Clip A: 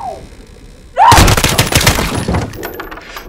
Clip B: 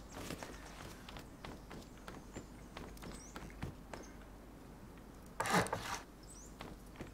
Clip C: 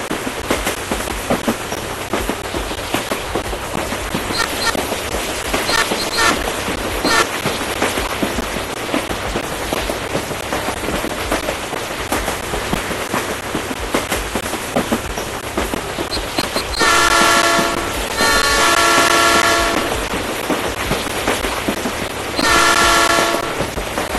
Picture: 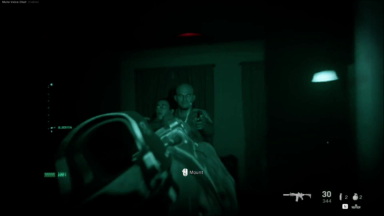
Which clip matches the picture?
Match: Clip A